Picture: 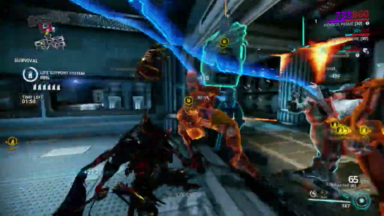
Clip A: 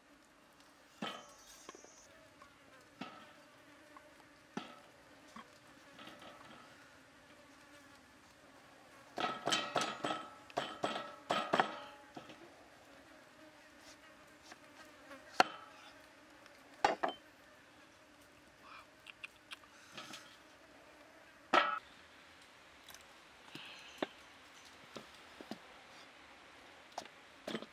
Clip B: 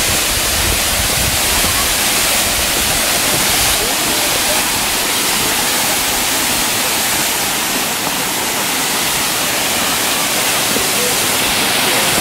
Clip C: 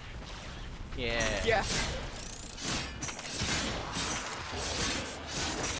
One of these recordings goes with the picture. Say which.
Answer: C